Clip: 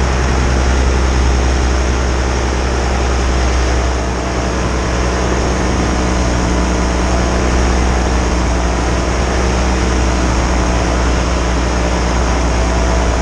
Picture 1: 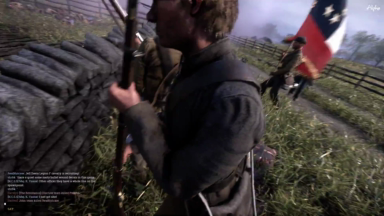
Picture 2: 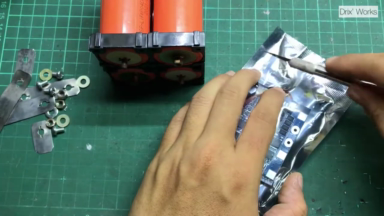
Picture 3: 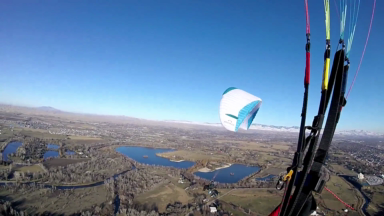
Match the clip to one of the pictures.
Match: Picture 3